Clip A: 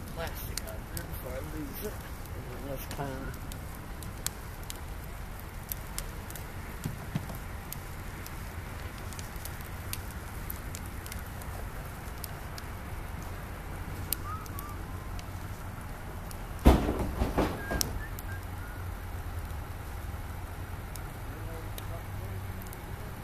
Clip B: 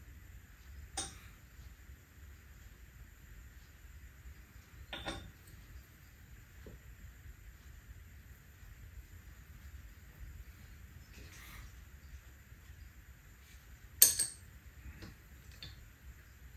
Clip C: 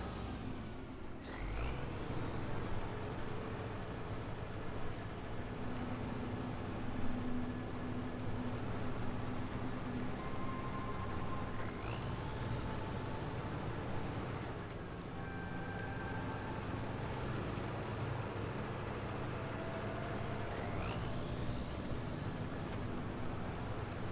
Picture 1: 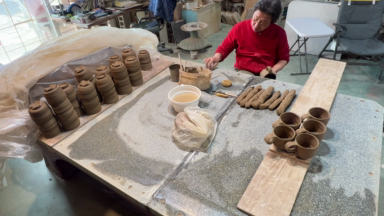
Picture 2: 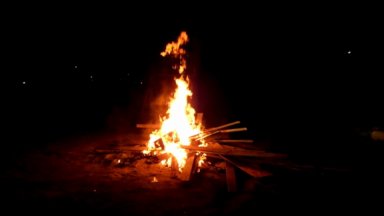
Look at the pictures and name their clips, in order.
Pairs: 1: B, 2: A